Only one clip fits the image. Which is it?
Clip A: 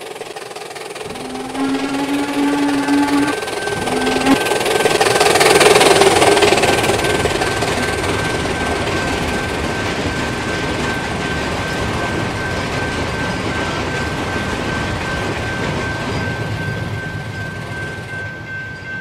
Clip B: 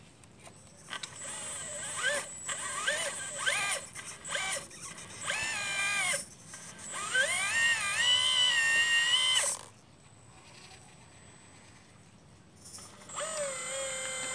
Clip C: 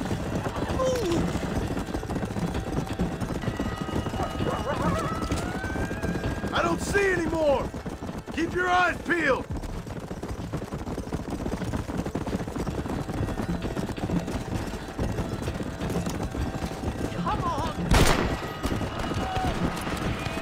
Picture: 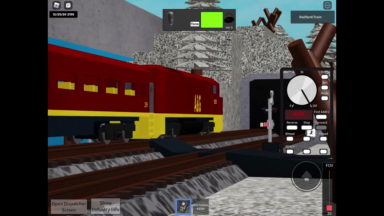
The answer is A